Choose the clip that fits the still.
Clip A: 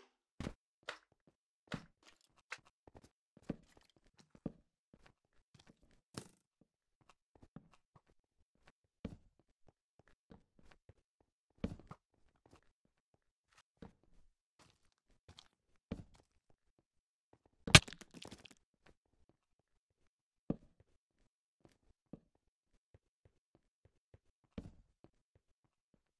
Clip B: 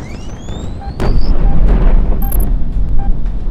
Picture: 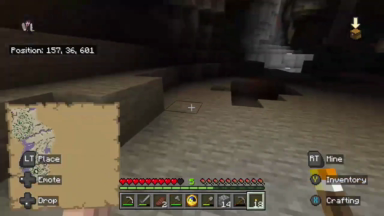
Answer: A